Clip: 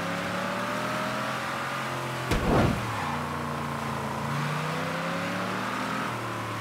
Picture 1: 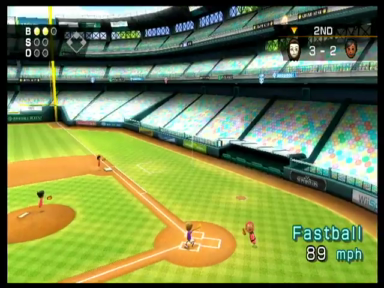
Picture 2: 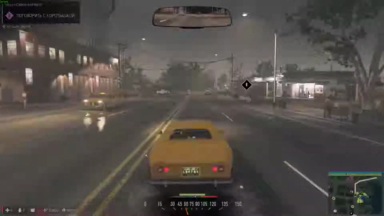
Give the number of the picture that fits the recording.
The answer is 2